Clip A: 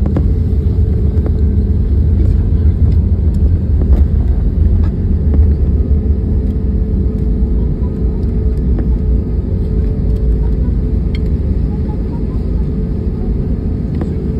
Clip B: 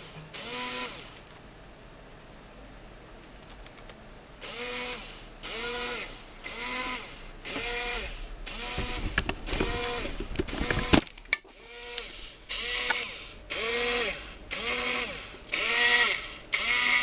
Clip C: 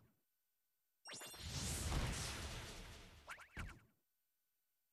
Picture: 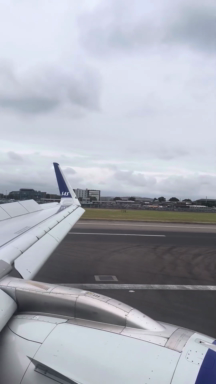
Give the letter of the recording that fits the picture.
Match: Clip A